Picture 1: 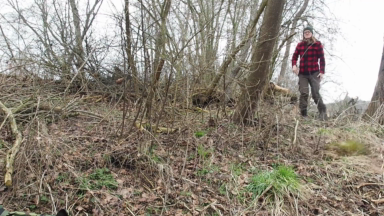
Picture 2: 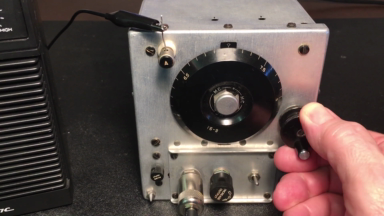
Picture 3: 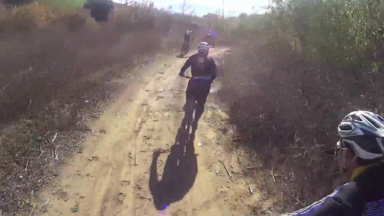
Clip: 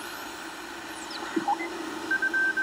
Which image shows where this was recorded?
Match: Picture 2